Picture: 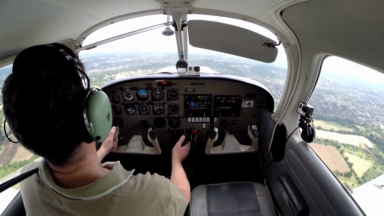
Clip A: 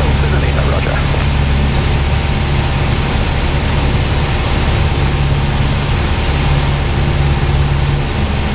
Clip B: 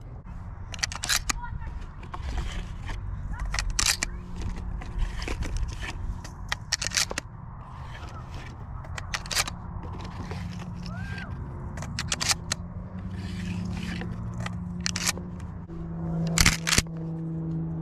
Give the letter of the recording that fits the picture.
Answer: A